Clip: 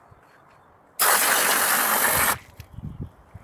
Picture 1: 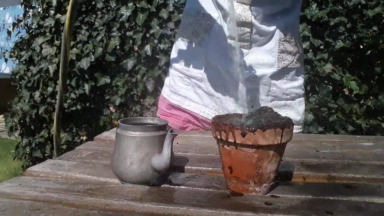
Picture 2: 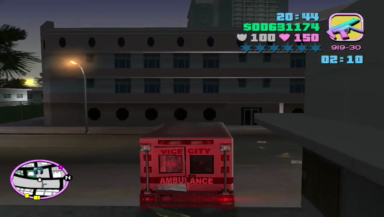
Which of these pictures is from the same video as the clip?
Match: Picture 1